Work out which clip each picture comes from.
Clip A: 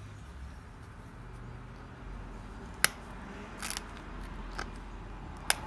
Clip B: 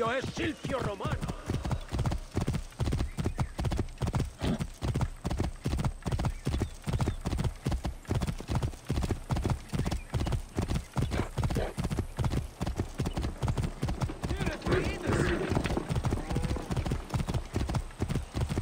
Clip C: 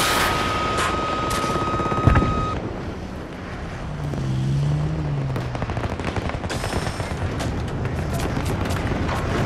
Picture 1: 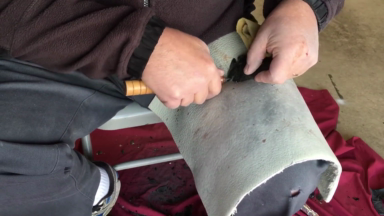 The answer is A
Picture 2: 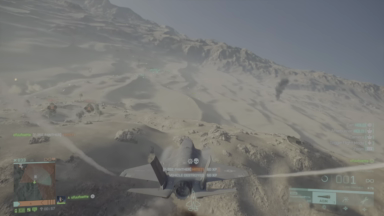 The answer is C